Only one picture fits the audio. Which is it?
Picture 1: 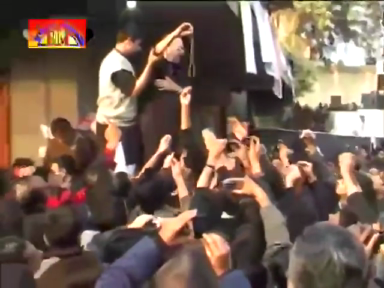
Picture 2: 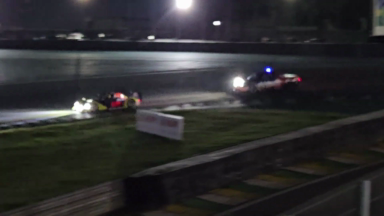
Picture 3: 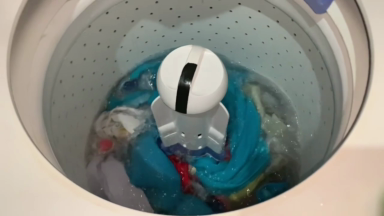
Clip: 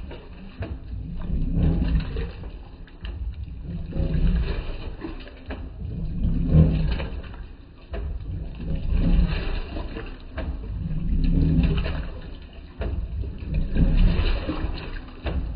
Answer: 3